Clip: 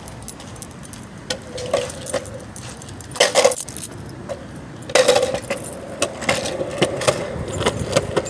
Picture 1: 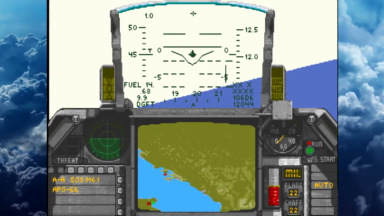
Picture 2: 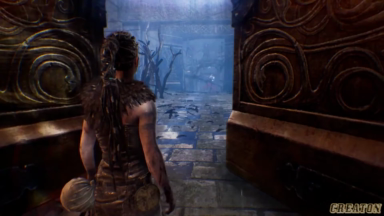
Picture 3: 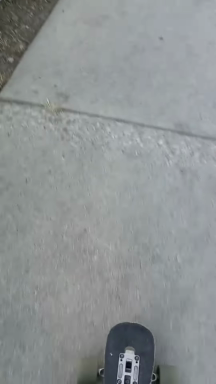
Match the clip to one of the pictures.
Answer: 3